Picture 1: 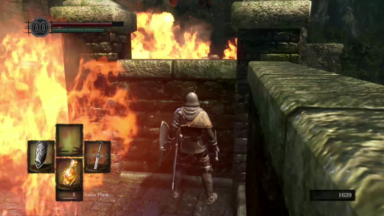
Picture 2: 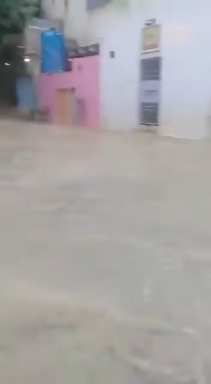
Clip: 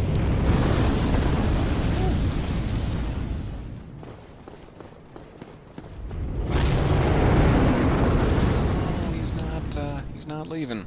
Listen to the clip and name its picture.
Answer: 1